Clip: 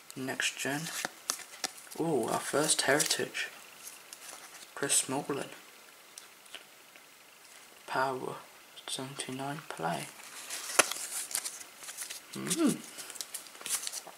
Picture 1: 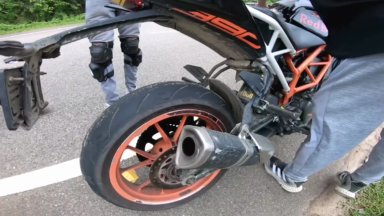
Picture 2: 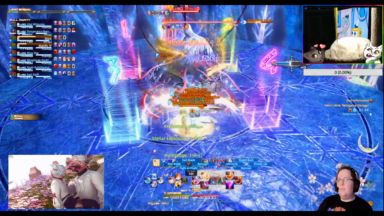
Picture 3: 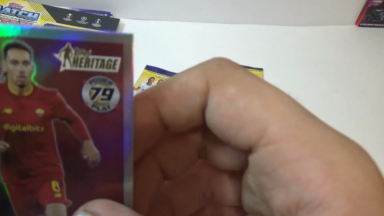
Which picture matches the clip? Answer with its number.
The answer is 3